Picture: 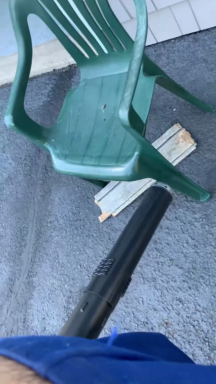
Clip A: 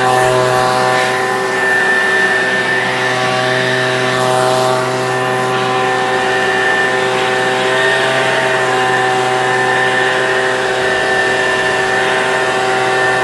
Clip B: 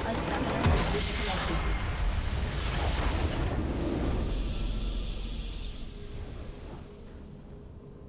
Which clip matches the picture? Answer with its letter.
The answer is A